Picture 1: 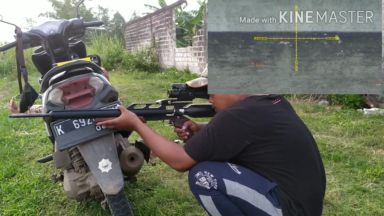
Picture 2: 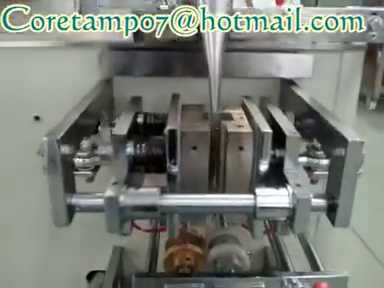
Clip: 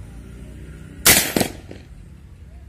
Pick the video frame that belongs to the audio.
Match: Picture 1